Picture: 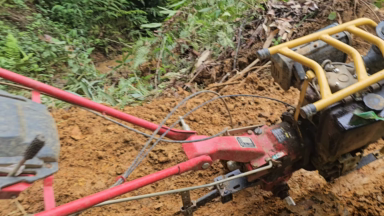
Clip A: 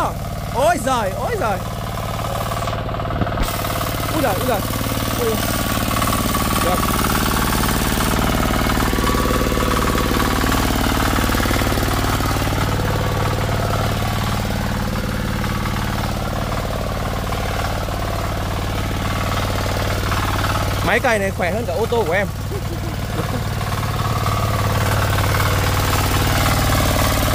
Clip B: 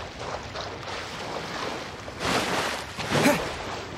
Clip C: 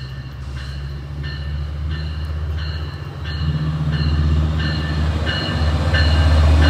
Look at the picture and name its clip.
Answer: A